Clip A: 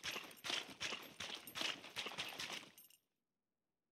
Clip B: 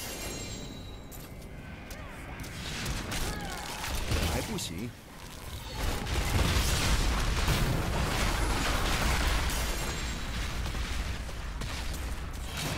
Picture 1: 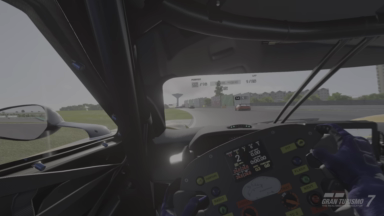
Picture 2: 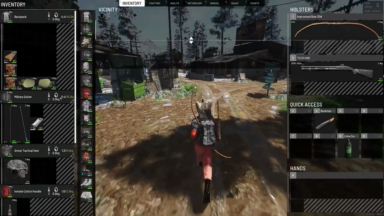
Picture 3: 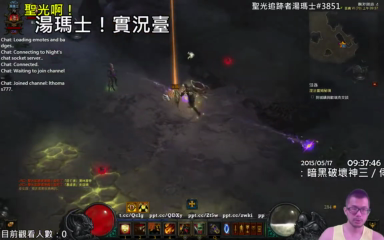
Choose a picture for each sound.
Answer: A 2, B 3